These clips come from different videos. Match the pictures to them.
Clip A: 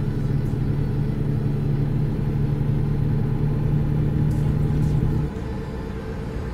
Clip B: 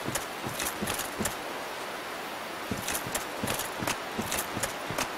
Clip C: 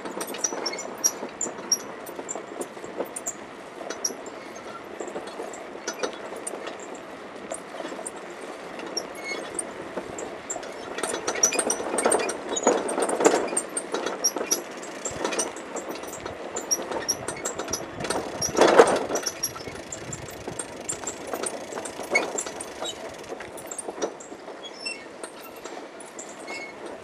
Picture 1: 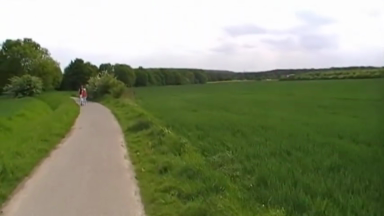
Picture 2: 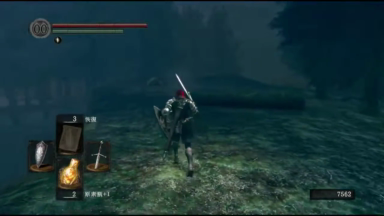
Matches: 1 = C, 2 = B